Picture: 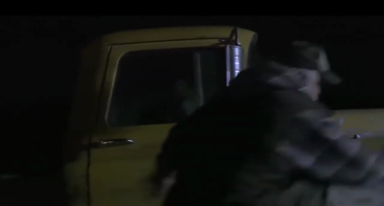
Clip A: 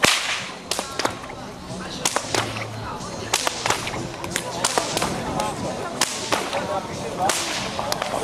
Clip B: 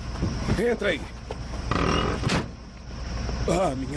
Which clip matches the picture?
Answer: B